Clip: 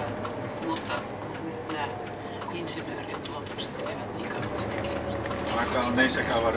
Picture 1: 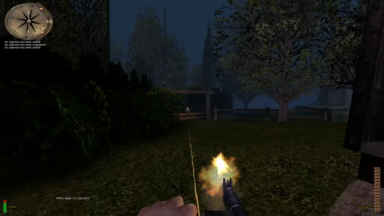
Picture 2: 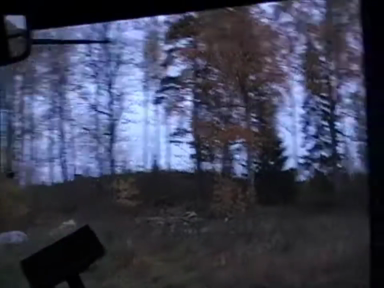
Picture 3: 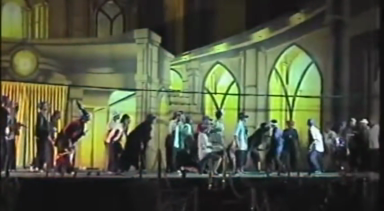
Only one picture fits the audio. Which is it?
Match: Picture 2